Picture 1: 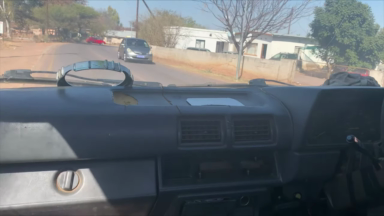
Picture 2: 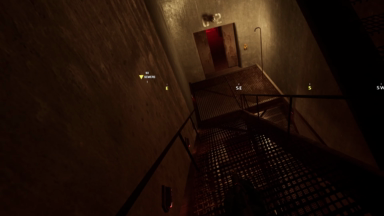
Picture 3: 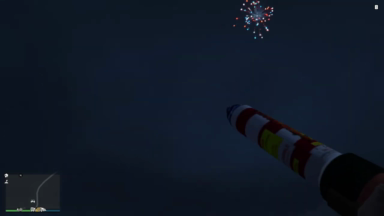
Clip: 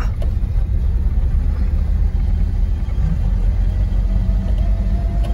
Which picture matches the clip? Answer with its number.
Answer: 1